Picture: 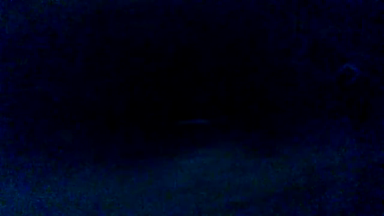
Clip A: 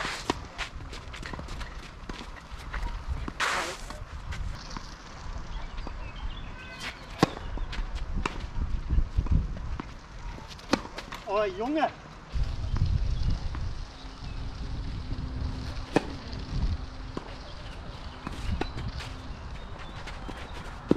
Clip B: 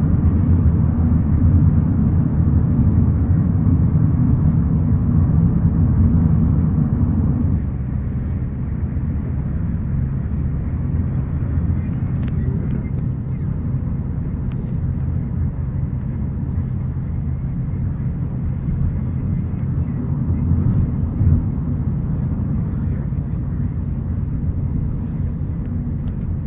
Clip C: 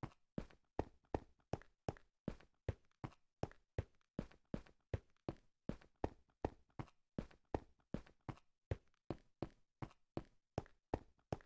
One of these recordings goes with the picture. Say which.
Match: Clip B